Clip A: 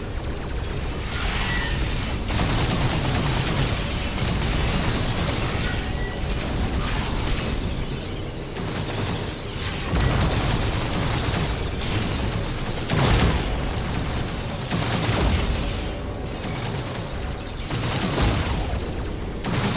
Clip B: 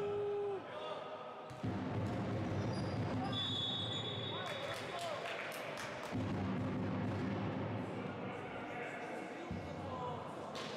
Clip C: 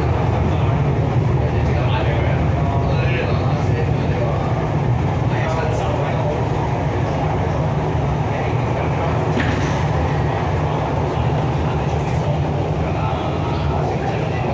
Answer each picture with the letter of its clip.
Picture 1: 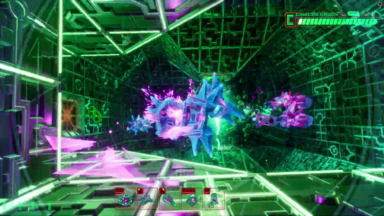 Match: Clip A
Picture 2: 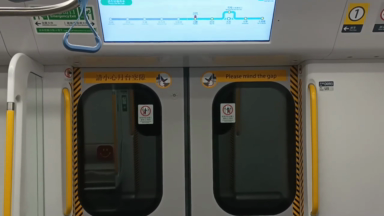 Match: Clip C